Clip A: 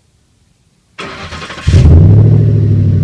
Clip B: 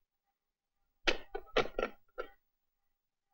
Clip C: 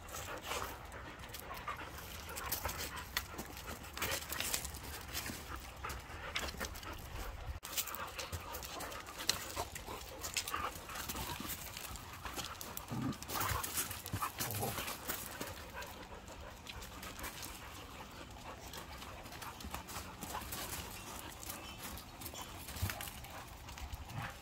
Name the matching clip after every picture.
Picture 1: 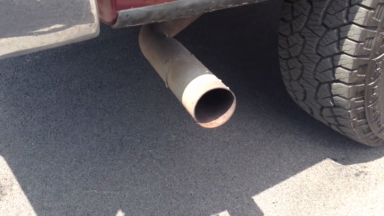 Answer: A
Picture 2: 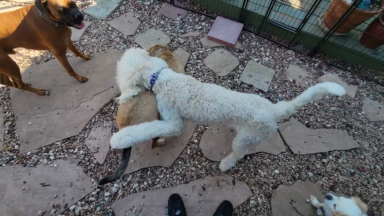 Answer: C